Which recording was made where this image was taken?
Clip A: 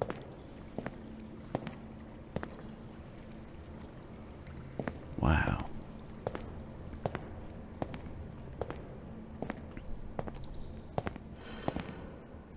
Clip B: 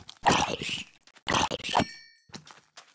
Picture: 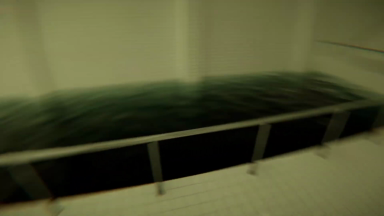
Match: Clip A